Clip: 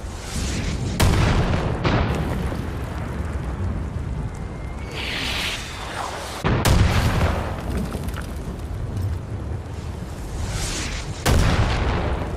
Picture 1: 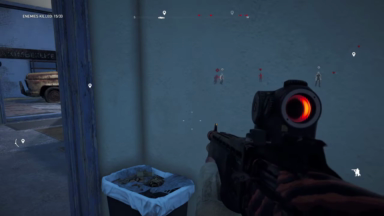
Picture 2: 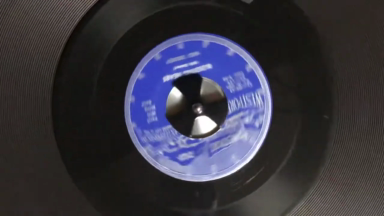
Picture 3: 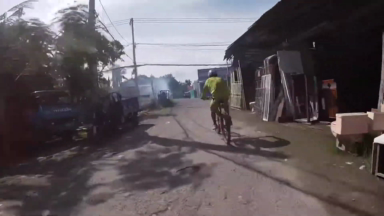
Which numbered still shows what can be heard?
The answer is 1